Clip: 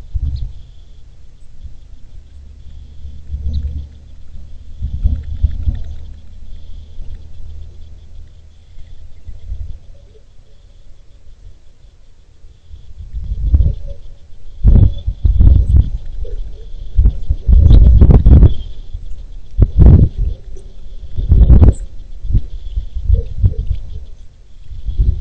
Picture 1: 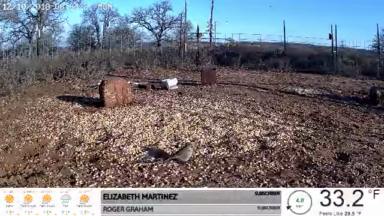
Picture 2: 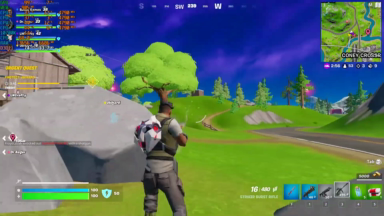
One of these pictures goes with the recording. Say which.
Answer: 1